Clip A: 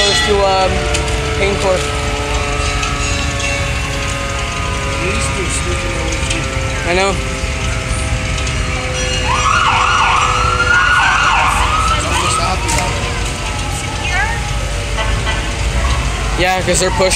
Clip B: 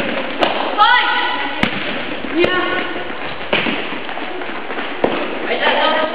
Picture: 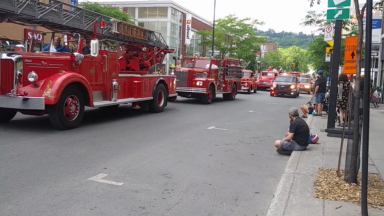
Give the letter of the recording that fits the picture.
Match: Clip A